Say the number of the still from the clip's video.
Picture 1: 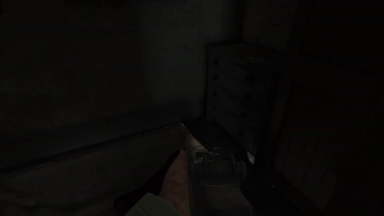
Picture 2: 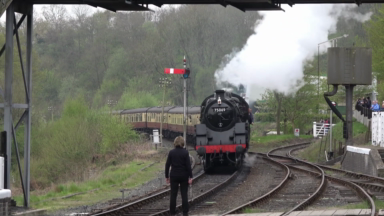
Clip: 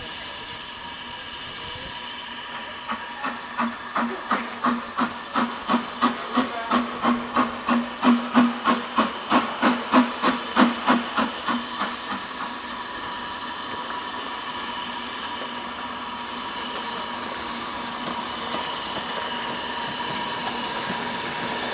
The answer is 2